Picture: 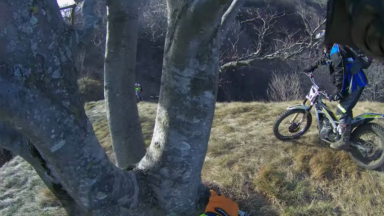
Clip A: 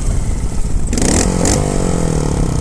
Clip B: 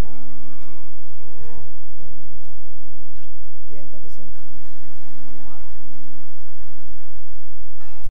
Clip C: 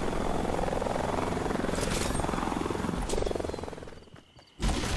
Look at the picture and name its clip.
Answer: A